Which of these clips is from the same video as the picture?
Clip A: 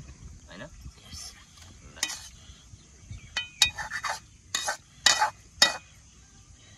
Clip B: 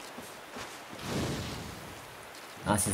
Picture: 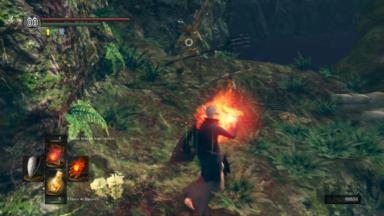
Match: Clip B